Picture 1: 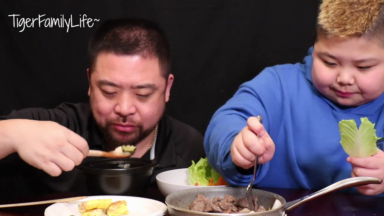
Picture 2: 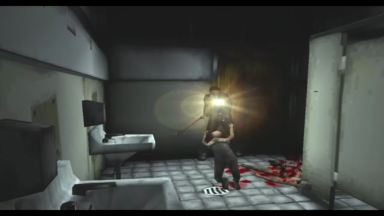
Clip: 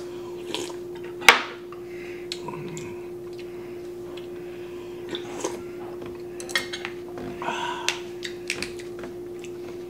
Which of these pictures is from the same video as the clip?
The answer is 1